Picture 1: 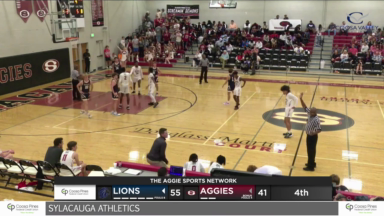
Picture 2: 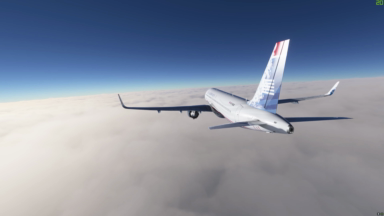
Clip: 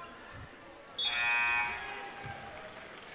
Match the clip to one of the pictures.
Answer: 1